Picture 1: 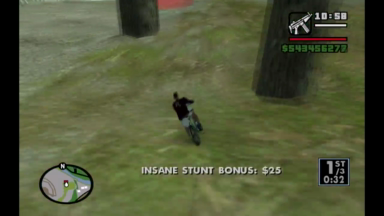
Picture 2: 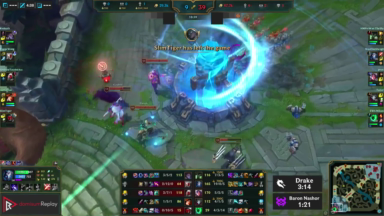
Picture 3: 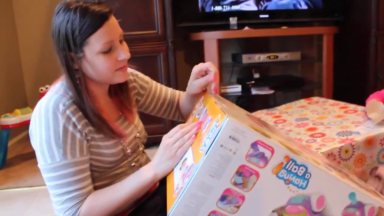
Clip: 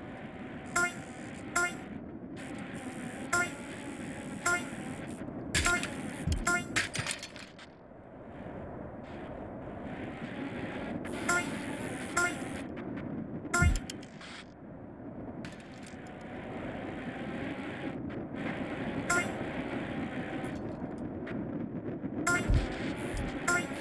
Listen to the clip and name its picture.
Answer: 1